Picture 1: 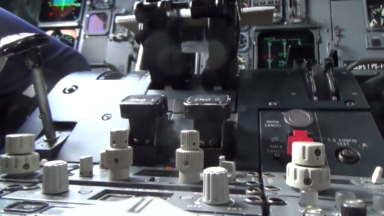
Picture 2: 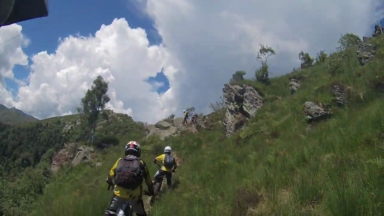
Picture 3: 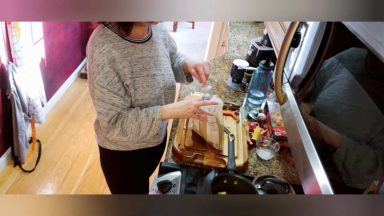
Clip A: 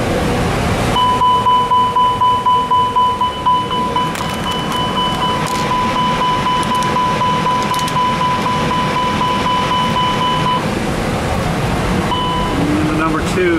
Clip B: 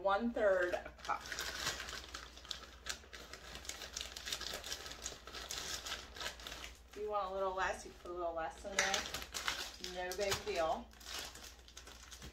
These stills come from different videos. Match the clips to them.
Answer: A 1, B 3